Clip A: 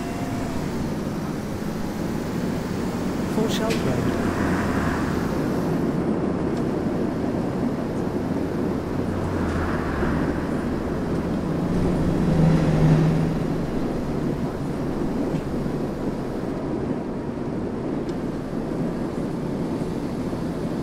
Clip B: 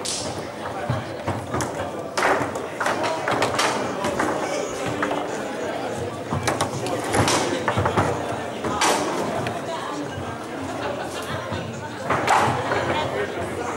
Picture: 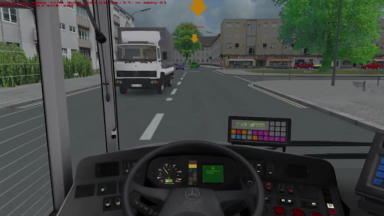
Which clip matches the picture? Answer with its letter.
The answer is A